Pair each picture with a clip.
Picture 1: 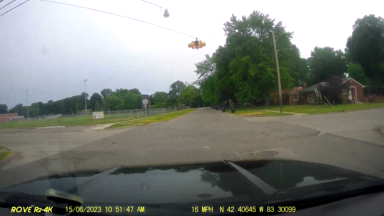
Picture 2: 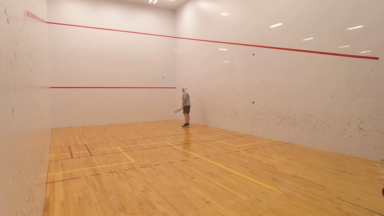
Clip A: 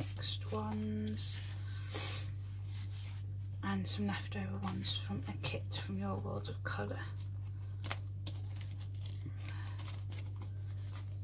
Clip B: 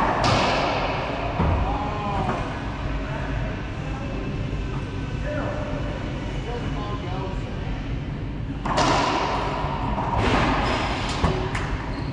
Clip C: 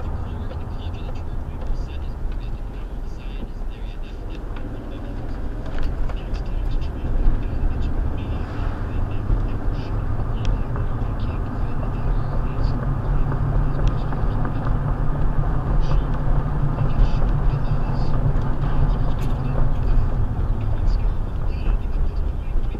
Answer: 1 C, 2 B